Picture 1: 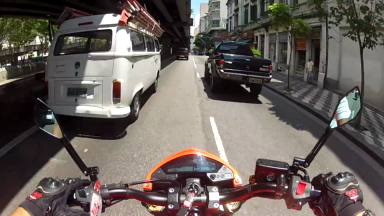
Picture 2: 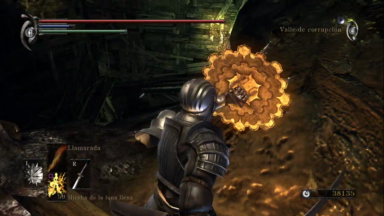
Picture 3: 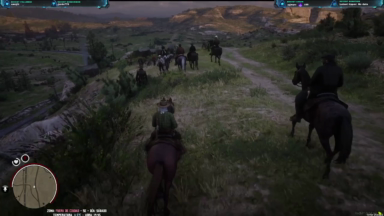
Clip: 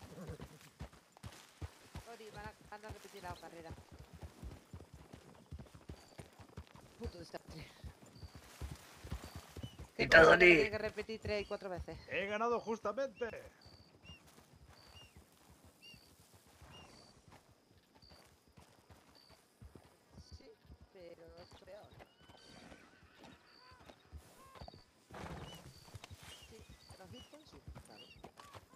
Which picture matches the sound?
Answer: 3